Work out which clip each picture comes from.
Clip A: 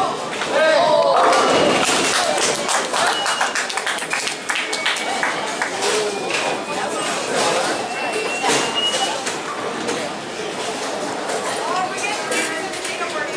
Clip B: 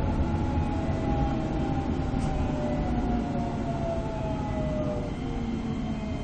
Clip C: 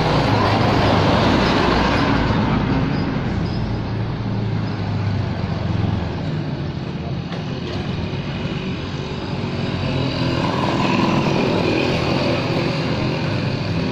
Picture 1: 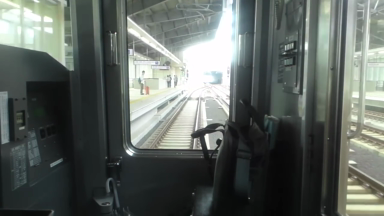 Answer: B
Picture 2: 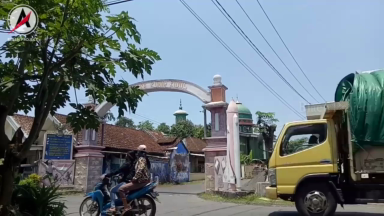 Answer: C